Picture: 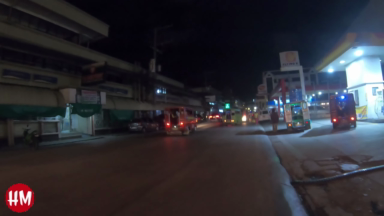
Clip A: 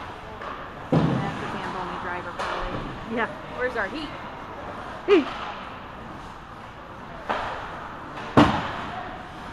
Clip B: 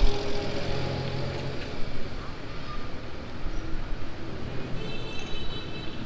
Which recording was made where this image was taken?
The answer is B